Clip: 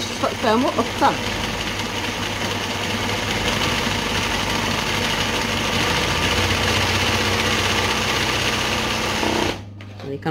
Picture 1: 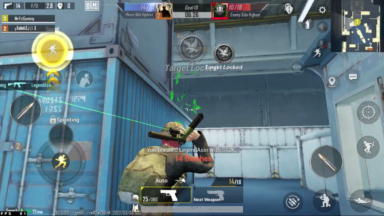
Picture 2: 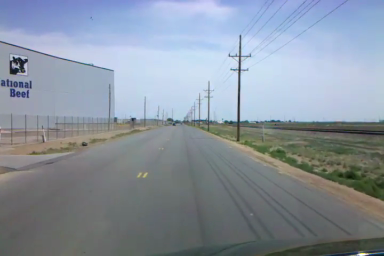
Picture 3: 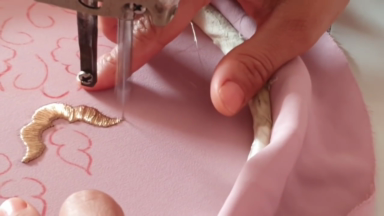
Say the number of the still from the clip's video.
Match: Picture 3